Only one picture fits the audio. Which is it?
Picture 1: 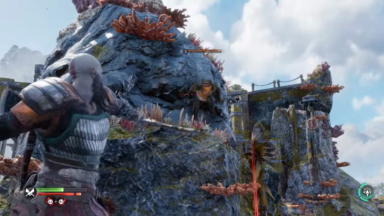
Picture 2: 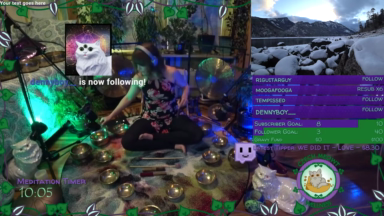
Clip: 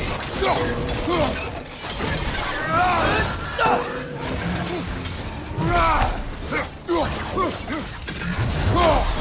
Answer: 1